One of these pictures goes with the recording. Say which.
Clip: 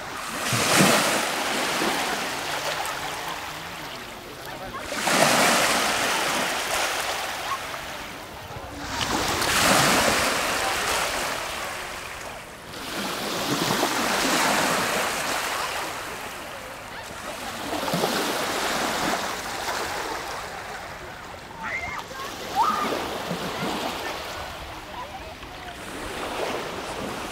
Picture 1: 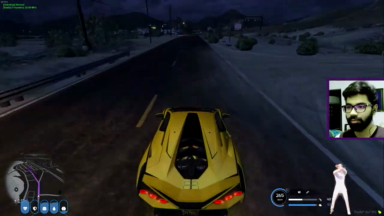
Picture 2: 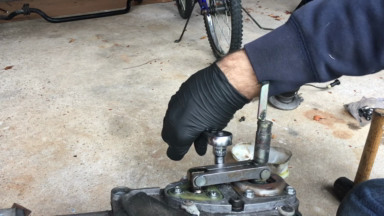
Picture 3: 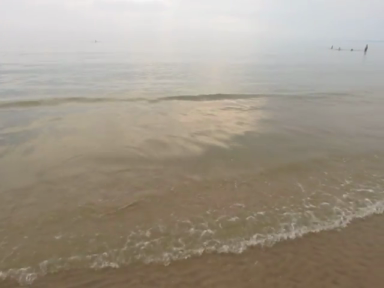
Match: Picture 3